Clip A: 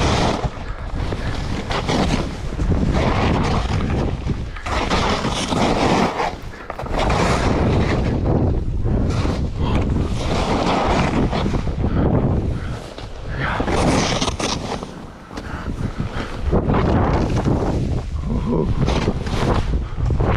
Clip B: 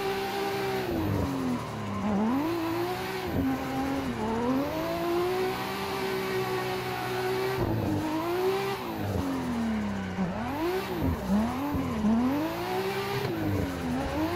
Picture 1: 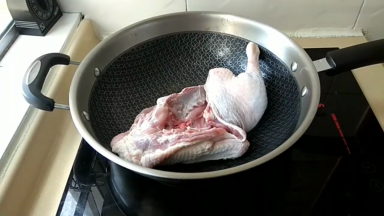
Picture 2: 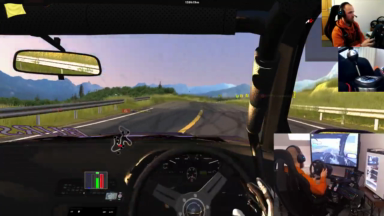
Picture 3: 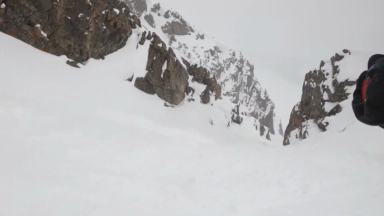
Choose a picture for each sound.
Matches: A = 3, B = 2